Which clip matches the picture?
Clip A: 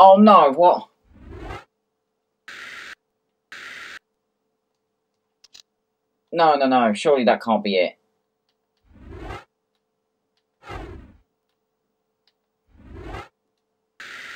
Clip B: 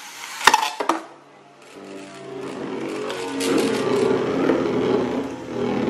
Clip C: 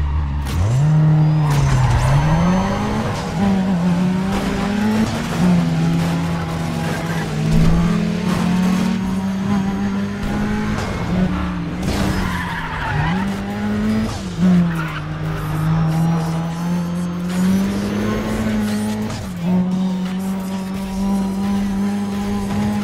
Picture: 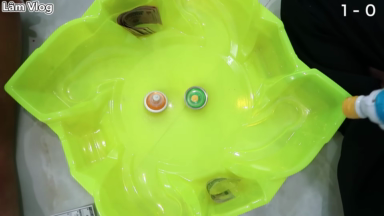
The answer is B